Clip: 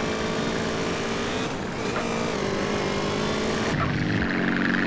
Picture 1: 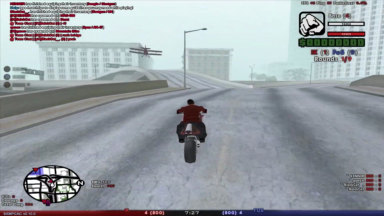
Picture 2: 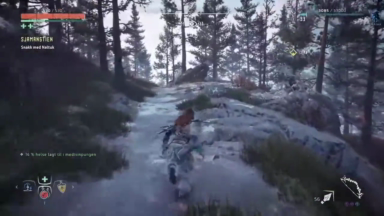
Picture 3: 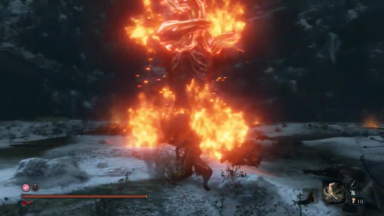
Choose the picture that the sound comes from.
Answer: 1